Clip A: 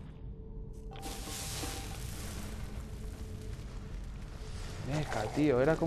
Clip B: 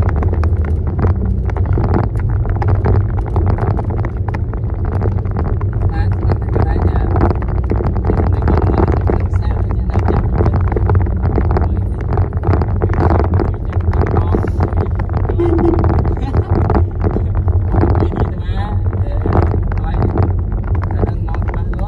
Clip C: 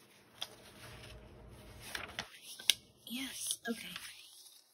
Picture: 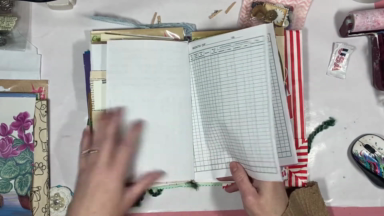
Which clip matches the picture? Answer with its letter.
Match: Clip C